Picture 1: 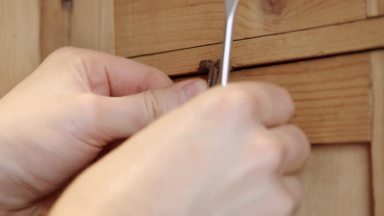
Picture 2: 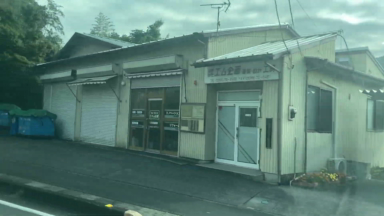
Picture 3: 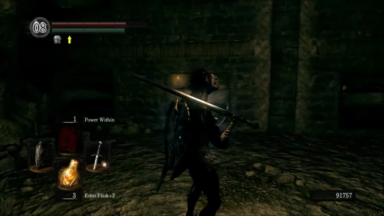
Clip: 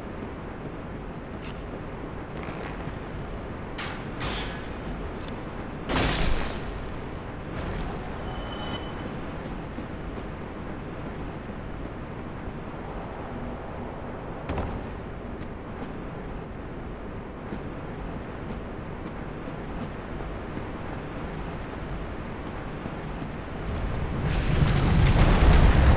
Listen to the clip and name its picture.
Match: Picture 3